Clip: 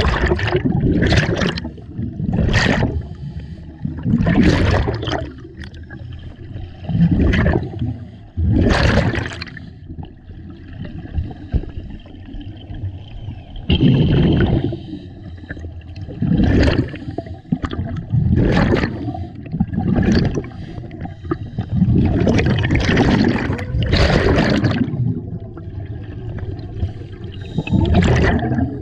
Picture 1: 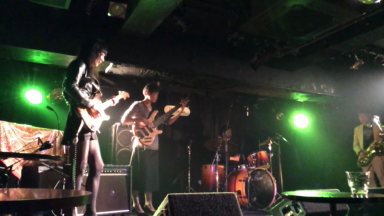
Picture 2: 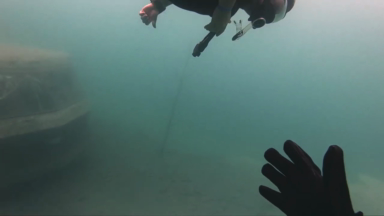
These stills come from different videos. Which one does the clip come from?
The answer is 2